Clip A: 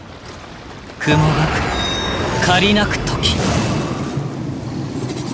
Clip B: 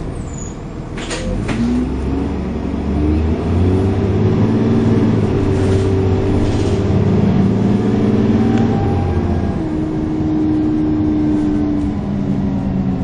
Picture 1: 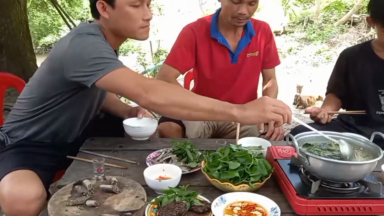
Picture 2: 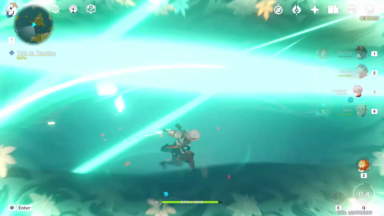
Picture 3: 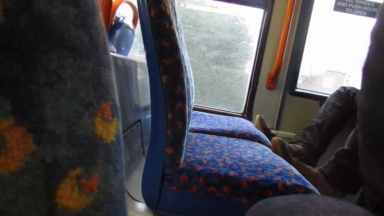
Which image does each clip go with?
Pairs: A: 2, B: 3